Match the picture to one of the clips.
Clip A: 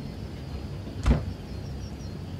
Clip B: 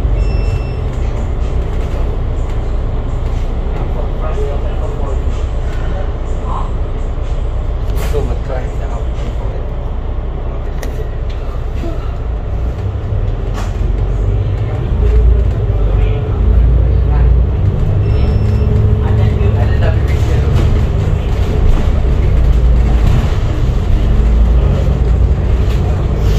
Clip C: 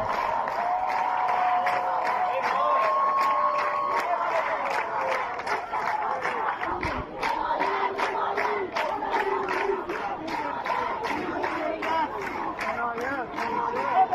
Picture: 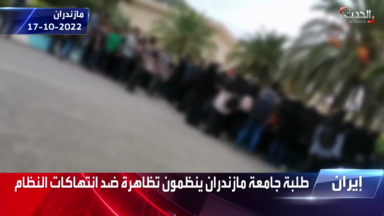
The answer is C